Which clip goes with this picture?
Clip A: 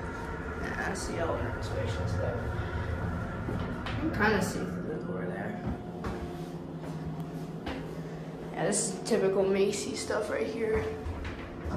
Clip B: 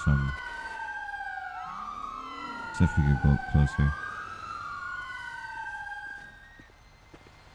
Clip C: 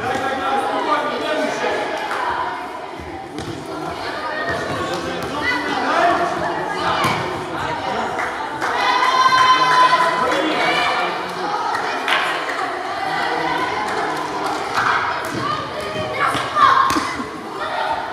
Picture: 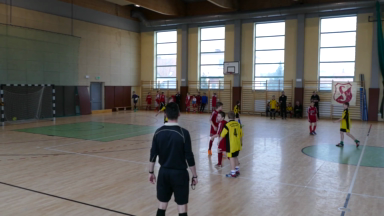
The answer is C